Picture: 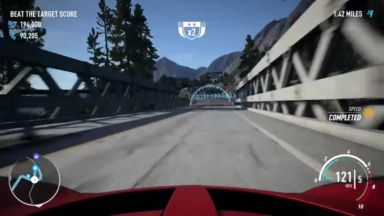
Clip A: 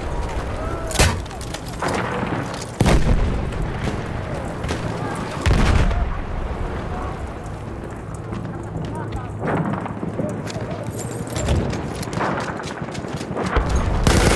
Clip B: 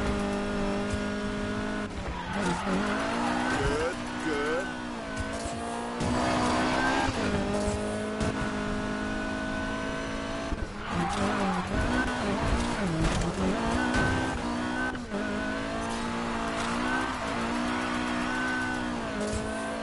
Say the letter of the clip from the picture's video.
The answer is B